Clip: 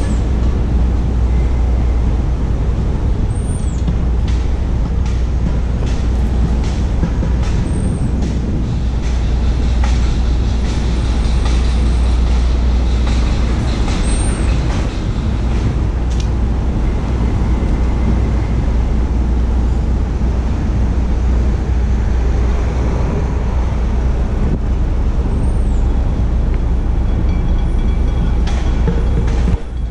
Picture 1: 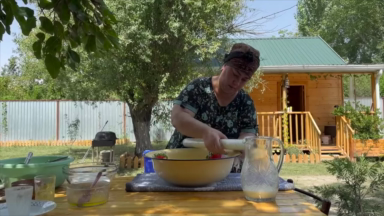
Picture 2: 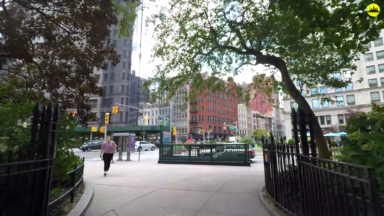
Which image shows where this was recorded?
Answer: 2